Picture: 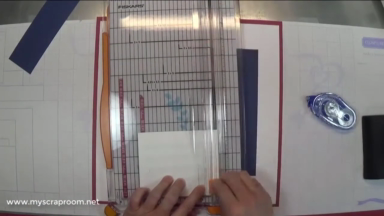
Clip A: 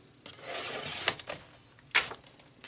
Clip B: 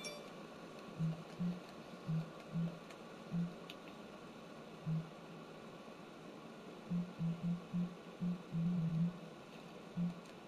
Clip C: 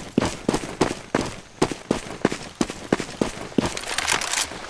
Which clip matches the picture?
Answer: A